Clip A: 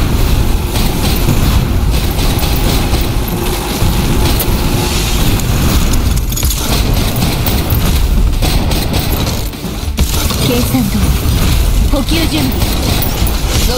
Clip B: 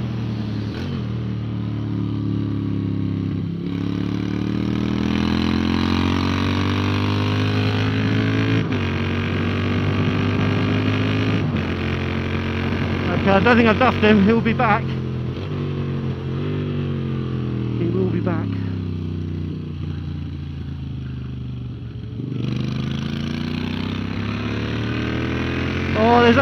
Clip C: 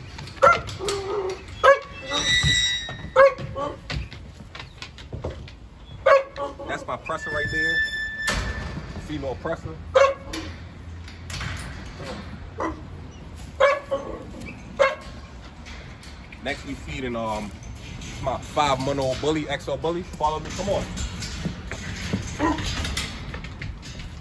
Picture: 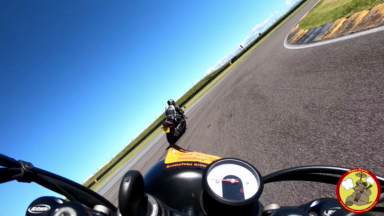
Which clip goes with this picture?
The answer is B